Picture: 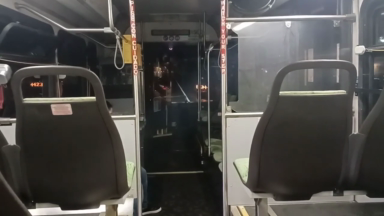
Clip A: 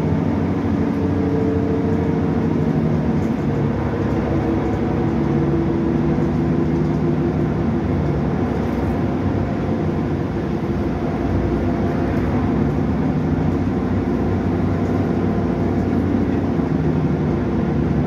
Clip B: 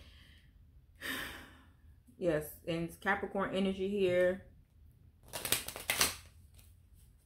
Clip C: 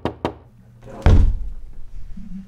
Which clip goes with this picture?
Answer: A